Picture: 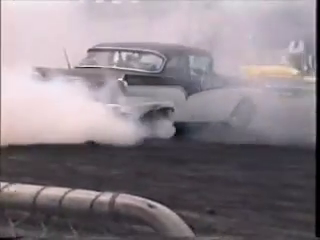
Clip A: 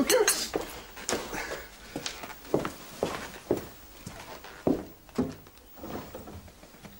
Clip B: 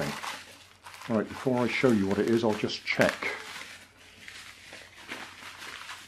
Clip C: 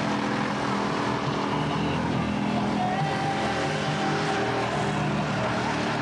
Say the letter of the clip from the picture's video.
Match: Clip C